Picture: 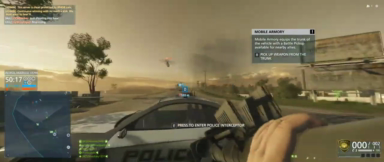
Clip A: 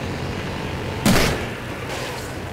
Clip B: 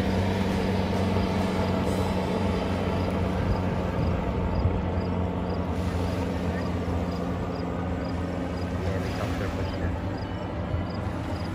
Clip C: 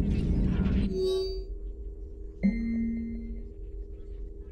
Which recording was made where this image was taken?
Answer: A